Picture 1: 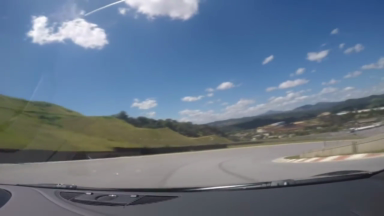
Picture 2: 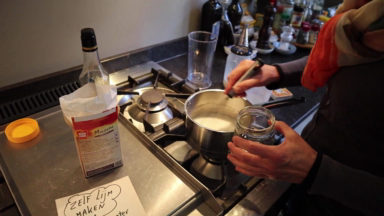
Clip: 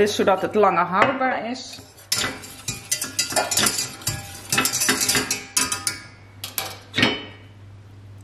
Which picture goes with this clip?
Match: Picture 2